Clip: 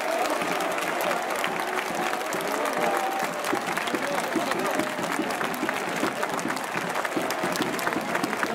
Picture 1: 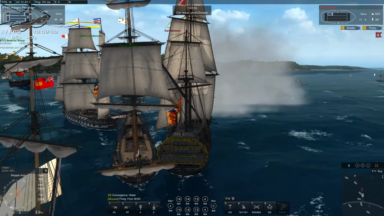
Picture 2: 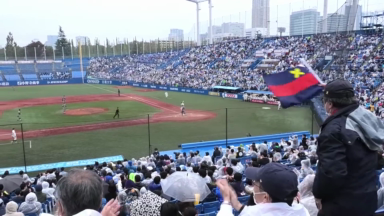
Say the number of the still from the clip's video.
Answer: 2